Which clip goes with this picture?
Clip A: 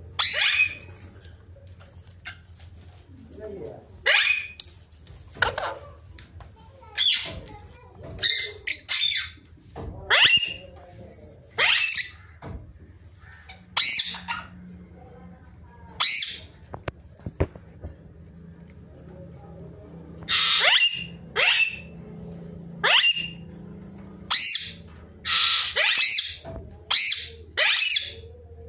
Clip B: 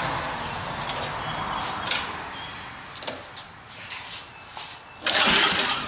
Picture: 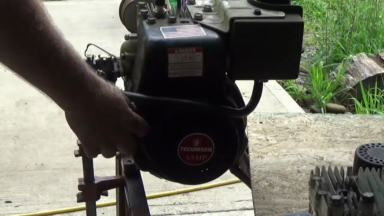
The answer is B